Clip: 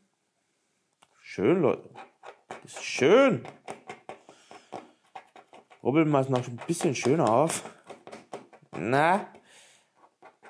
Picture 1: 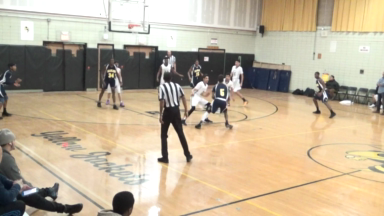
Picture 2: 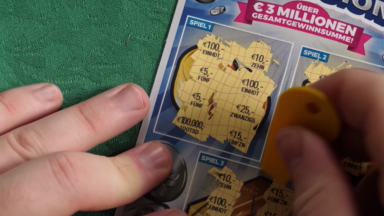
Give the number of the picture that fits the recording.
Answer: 2